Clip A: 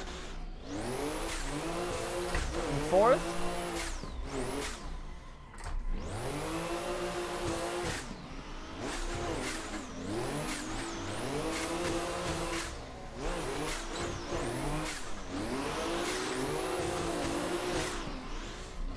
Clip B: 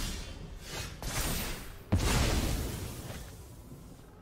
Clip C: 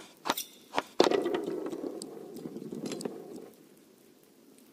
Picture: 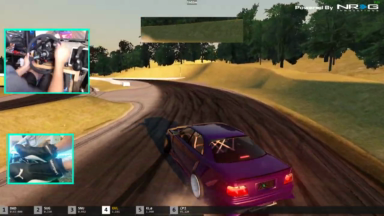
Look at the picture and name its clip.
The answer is A